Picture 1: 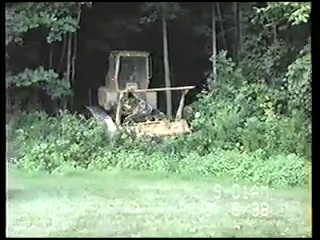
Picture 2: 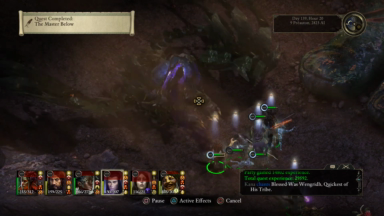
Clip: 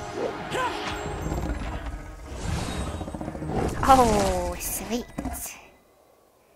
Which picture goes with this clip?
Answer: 2